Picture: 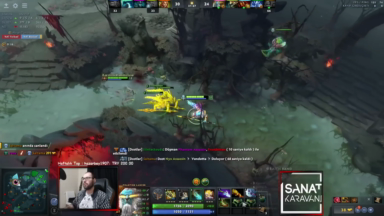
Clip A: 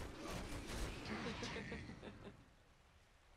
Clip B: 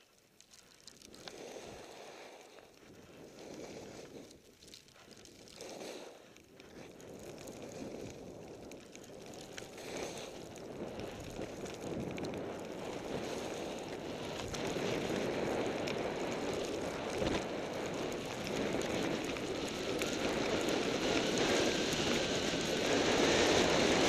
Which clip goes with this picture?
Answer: A